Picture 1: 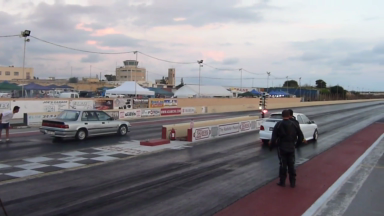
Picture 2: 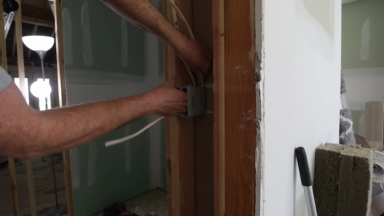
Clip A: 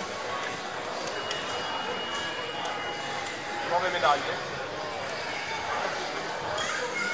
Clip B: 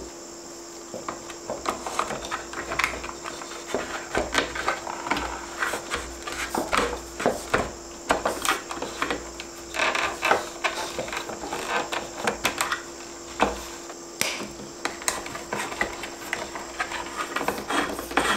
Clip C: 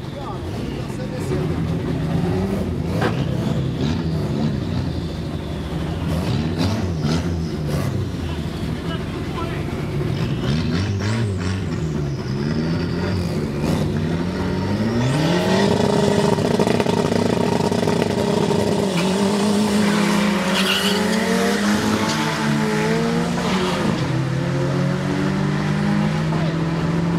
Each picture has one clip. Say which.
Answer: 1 C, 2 B